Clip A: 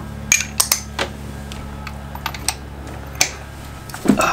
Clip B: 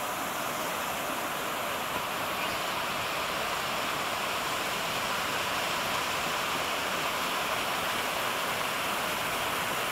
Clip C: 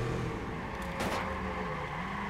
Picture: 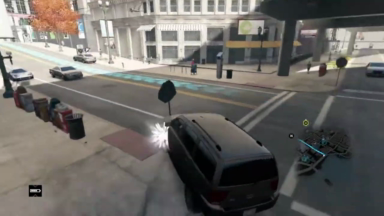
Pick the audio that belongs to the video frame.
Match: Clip C